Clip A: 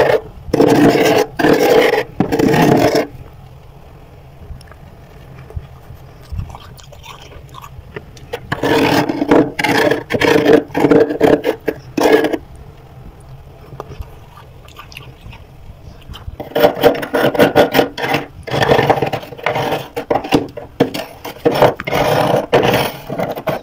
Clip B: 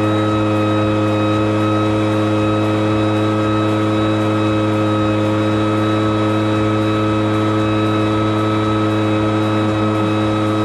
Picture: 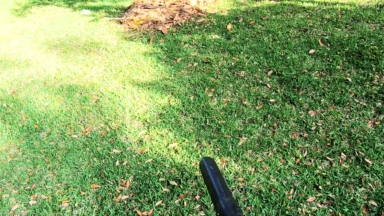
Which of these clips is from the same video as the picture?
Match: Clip B